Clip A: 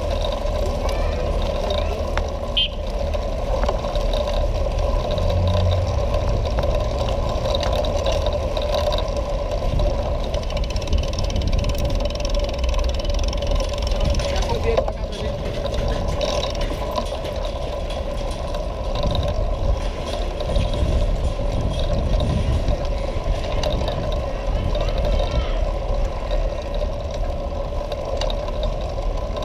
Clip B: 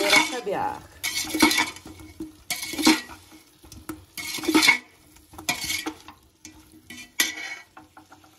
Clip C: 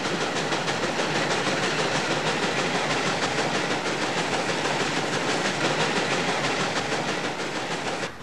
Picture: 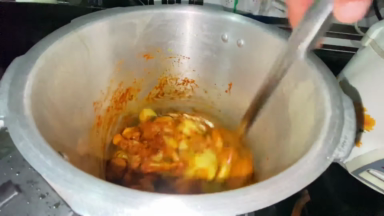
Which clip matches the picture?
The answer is B